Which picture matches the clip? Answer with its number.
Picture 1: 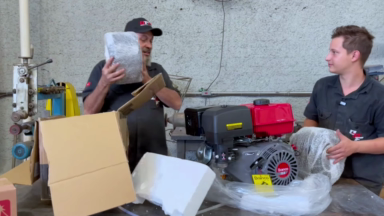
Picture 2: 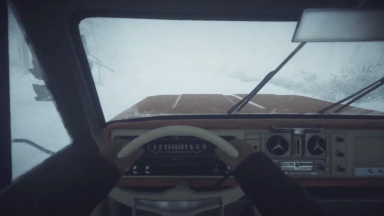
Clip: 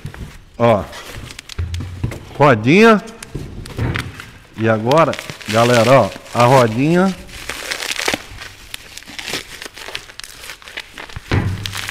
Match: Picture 1